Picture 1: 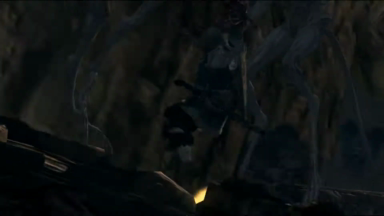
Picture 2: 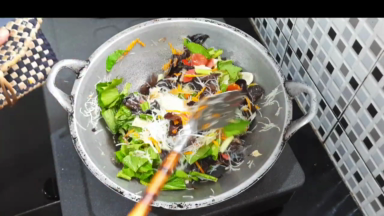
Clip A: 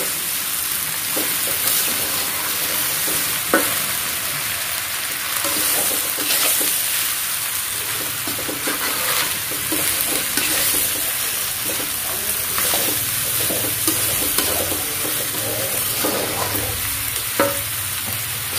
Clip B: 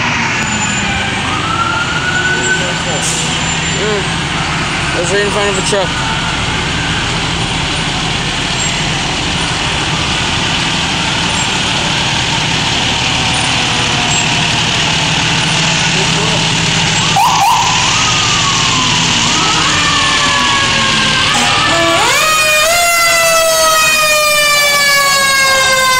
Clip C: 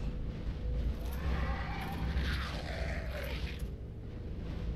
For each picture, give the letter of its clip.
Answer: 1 C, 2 A